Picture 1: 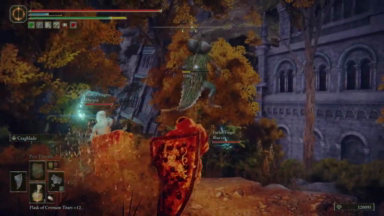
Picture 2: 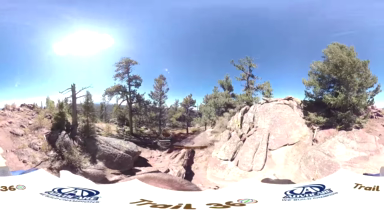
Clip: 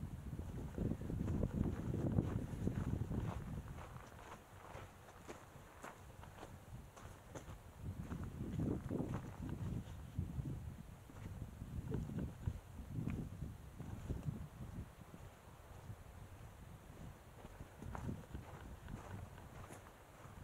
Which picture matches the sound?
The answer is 2